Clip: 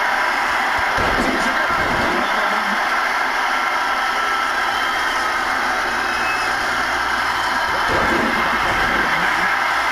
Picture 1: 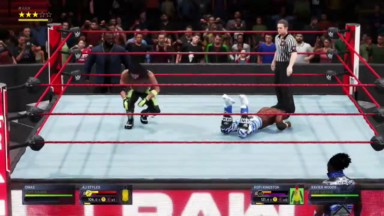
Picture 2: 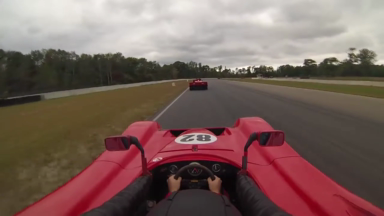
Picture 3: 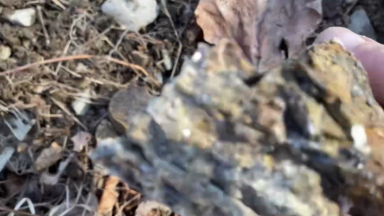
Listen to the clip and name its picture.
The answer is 1